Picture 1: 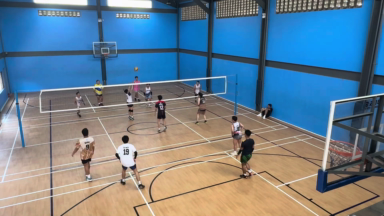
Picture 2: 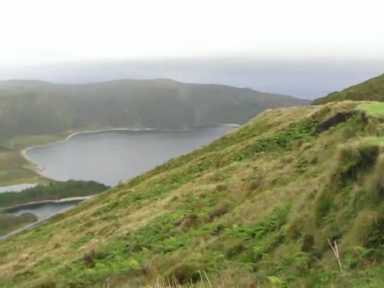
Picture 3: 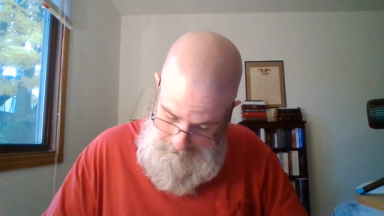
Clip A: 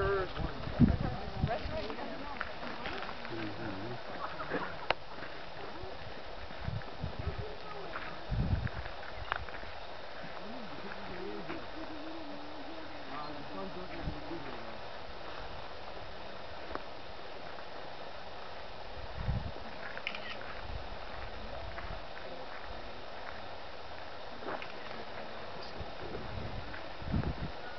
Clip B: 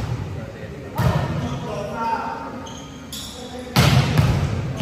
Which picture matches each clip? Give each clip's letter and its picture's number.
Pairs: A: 2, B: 1